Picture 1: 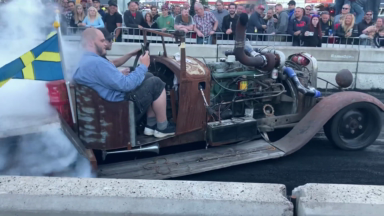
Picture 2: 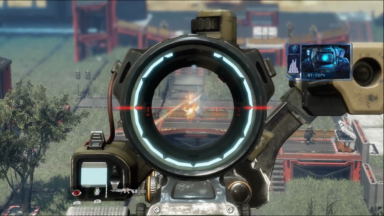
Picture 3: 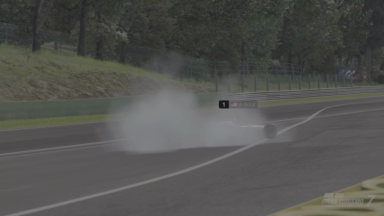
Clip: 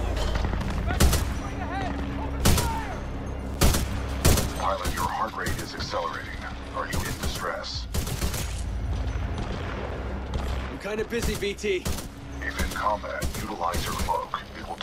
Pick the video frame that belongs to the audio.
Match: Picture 2